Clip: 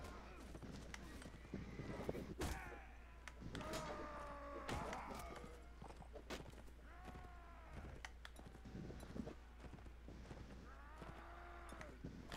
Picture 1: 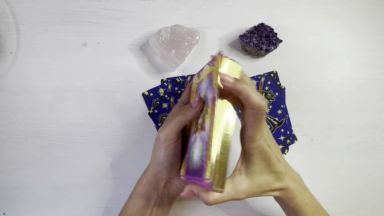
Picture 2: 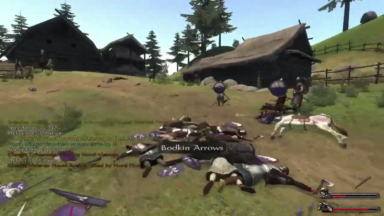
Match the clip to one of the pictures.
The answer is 2